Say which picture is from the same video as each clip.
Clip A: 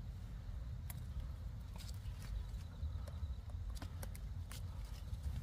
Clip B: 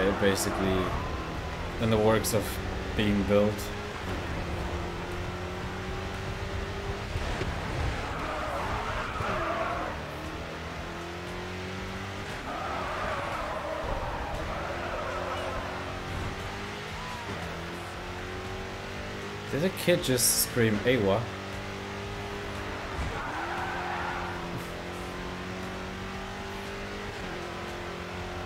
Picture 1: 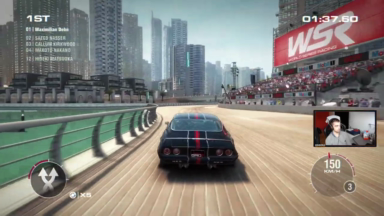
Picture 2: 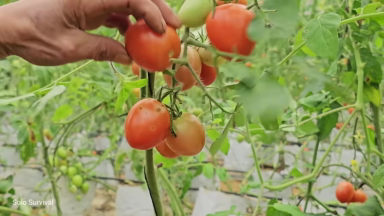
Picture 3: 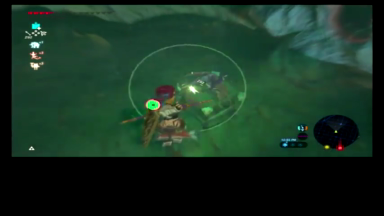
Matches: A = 2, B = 1